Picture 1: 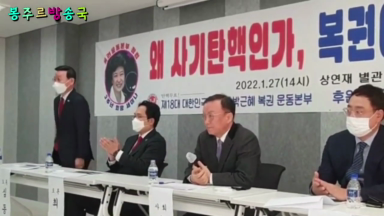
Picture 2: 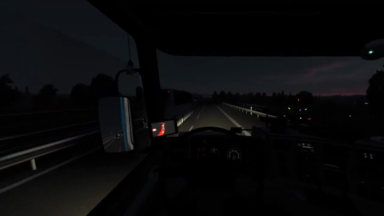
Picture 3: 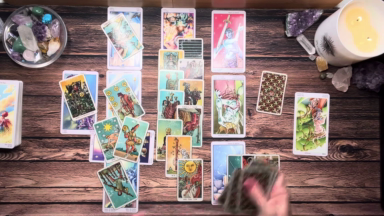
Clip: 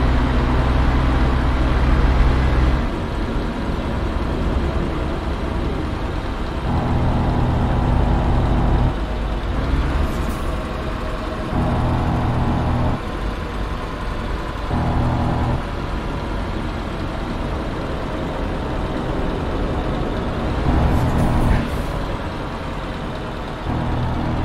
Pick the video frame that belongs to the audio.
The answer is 2